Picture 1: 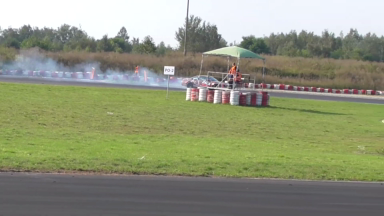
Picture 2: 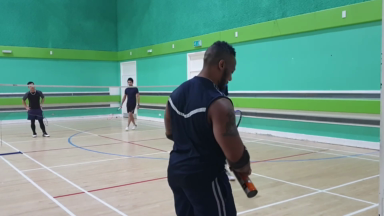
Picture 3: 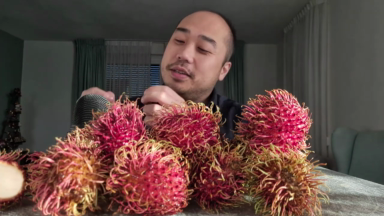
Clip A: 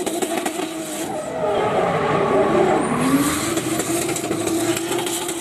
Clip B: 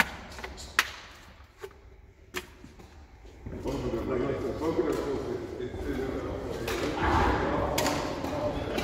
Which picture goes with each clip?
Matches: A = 1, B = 2